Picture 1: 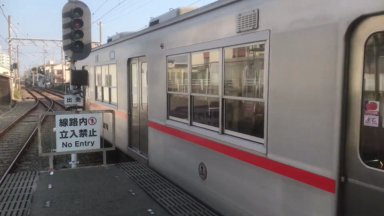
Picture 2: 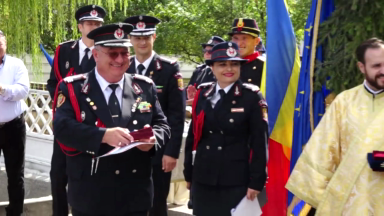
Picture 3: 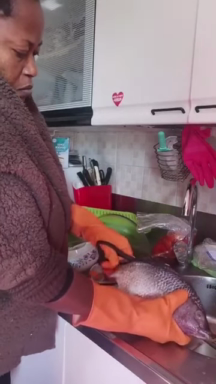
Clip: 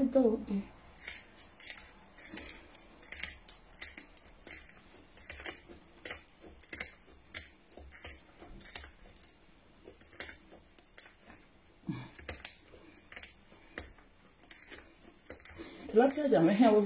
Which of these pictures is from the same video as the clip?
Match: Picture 3